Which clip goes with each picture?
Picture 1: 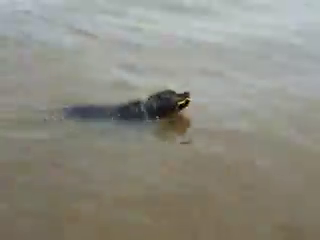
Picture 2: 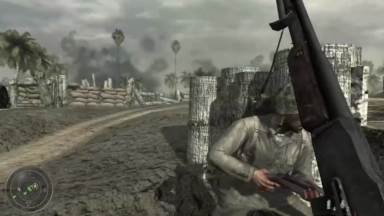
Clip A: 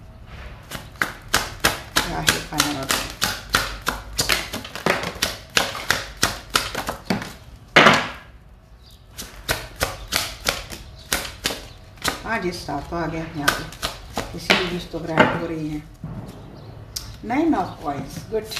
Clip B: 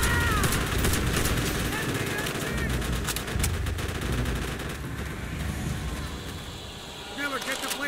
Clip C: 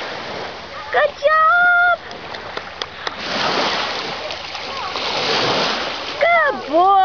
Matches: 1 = C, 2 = B